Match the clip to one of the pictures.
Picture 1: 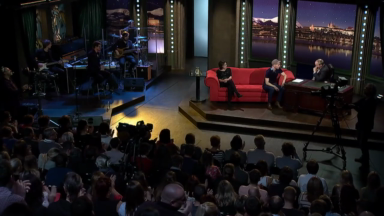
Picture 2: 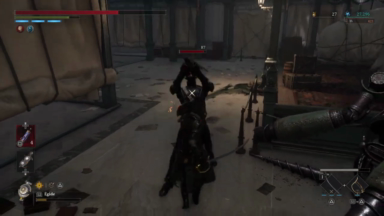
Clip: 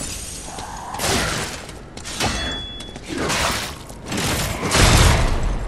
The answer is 2